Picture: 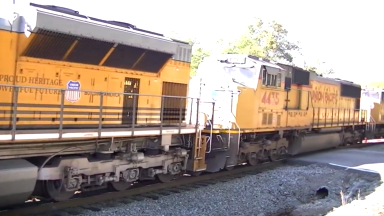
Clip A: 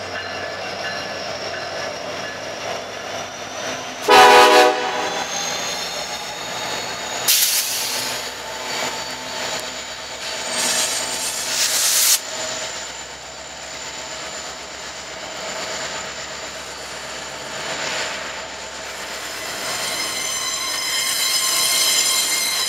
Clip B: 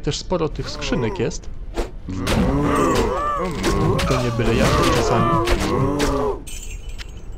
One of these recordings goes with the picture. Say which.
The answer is A